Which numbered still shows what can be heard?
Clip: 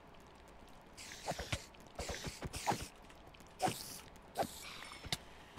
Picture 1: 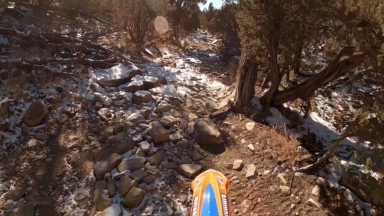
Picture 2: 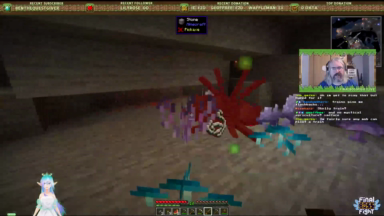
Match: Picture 2